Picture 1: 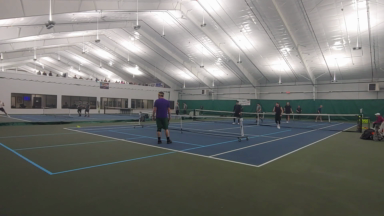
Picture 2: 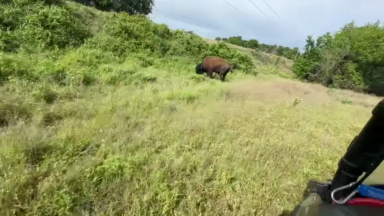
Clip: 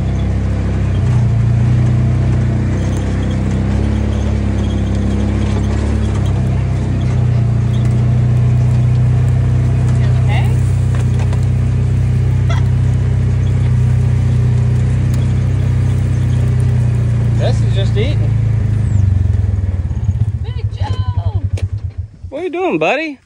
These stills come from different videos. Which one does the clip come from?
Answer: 2